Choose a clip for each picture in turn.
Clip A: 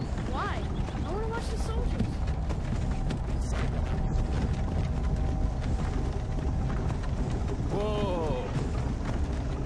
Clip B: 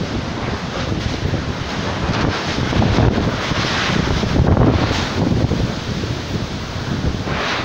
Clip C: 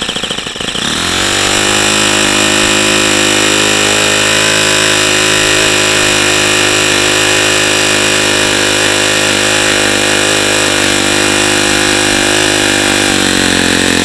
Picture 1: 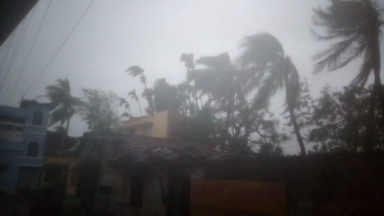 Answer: B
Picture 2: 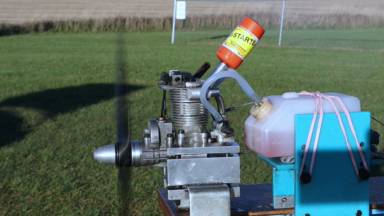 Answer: C